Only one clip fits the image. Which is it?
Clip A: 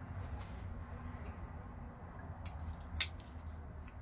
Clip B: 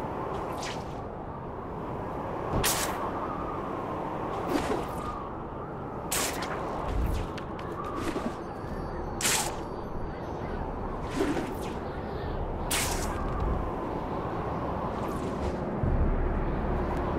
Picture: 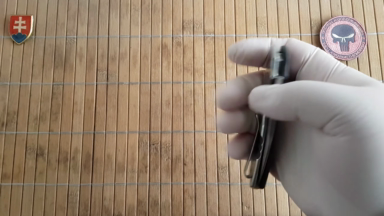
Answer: A